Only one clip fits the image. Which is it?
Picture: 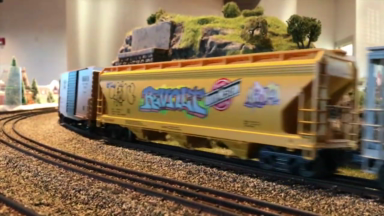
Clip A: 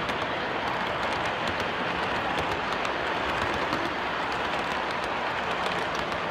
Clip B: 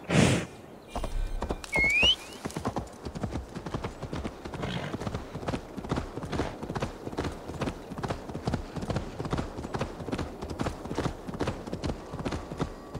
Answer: A